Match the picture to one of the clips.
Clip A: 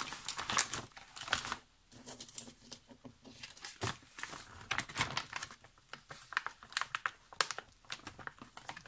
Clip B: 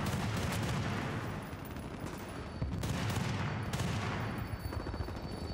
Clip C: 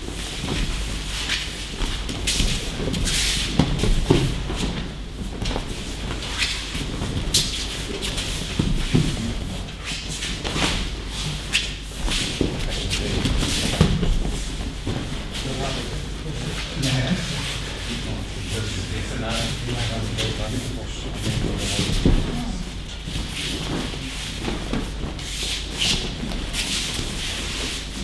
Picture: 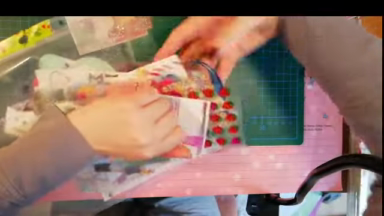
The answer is A